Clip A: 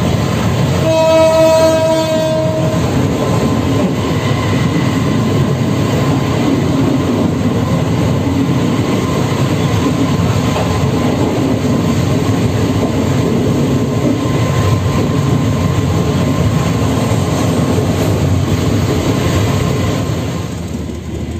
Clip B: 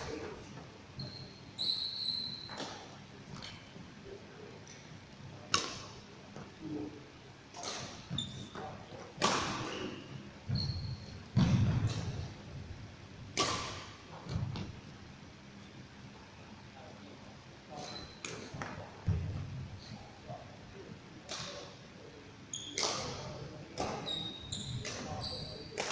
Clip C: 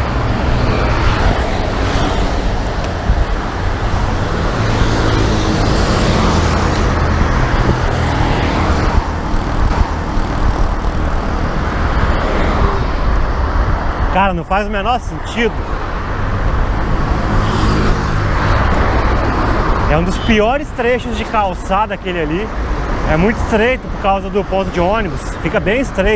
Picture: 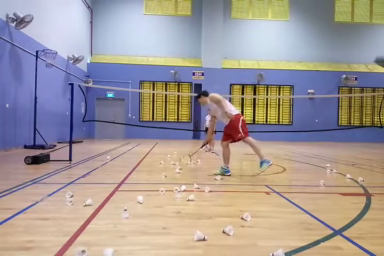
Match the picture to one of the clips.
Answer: B